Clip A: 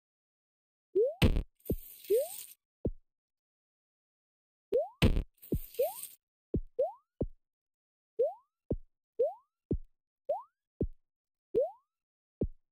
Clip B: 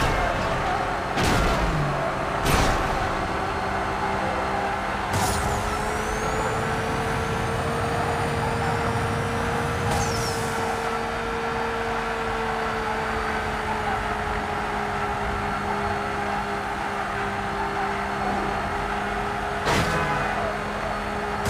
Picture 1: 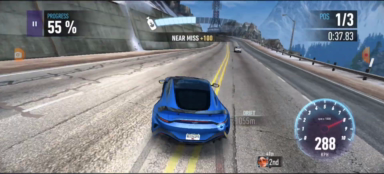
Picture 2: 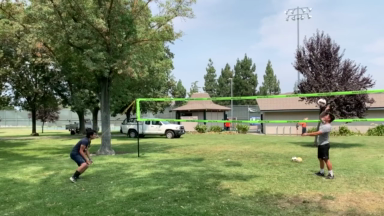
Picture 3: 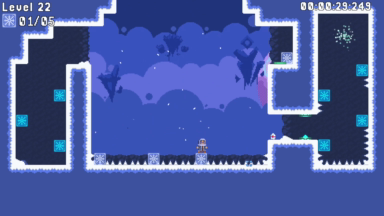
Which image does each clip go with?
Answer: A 3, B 1